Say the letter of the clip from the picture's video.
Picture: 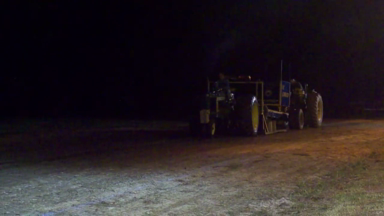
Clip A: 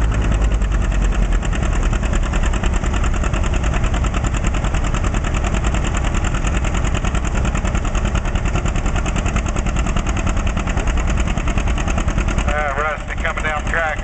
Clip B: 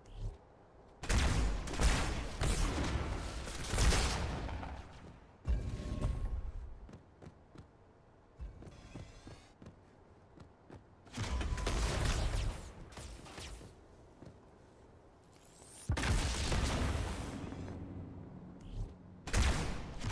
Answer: A